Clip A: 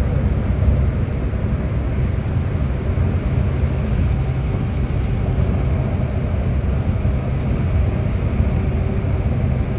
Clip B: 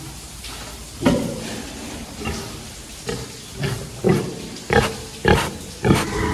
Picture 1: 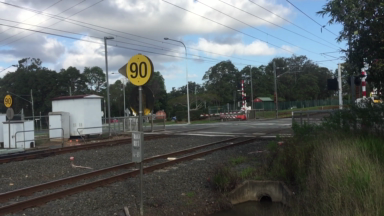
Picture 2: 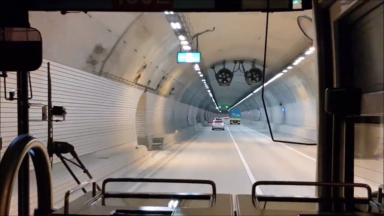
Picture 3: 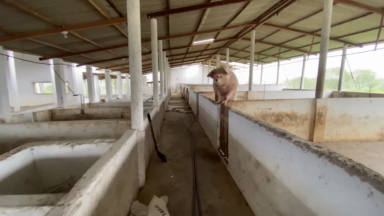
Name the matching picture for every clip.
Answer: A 2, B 3